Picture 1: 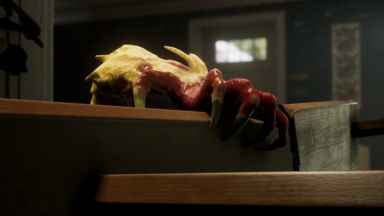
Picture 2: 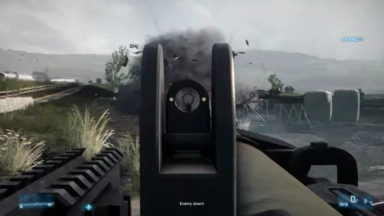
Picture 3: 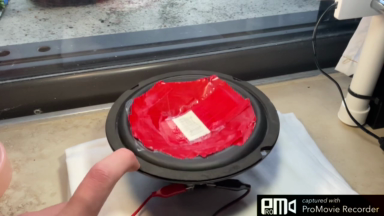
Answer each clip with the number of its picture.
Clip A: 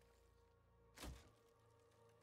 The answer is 1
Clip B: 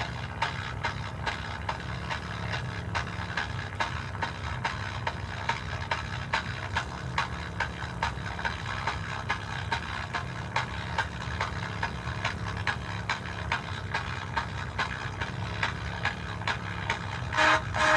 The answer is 3